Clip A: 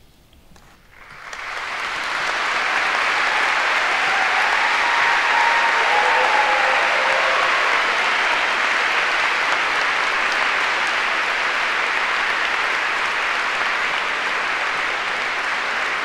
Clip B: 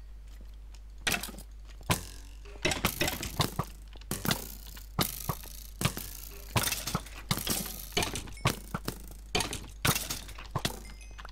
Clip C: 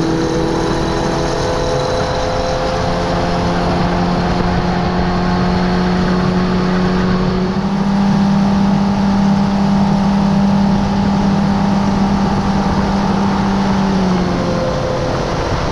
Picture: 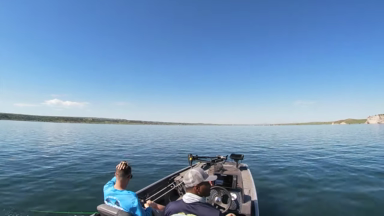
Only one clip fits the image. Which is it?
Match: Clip C